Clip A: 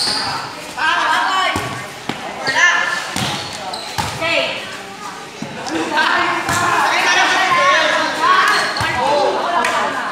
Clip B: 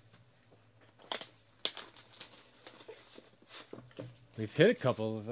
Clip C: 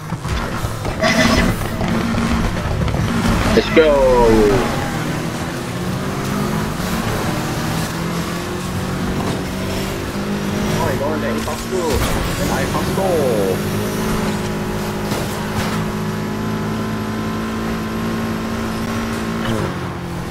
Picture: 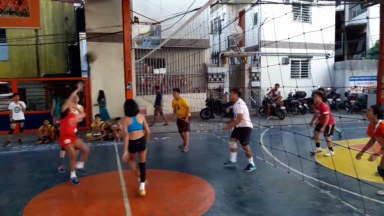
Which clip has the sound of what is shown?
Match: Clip A